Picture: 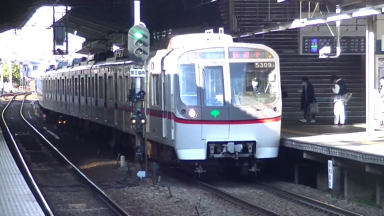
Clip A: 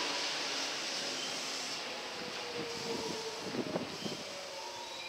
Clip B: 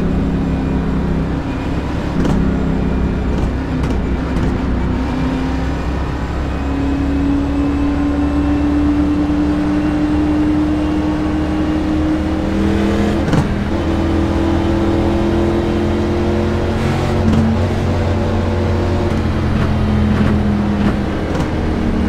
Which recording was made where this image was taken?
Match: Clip A